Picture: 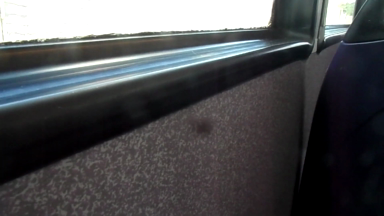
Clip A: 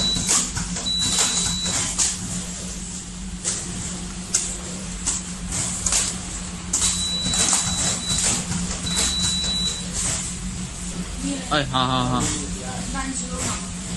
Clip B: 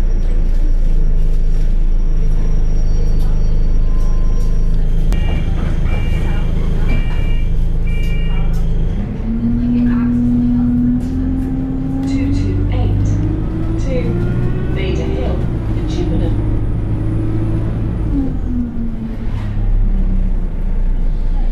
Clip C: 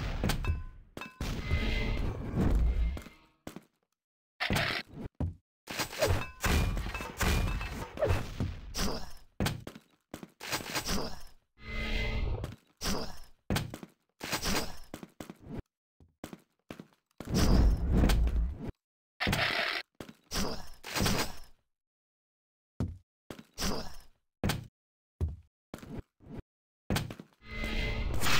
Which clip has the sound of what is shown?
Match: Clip B